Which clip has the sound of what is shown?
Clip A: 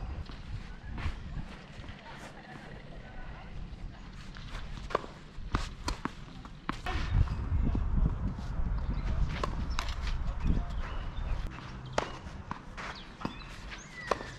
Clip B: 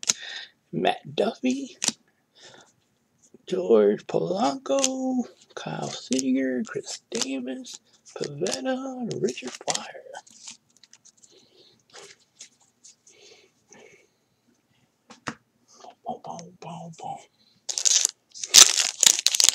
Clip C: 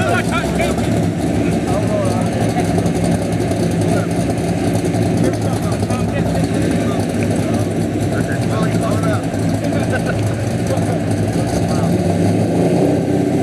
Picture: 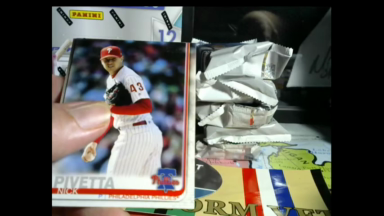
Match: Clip B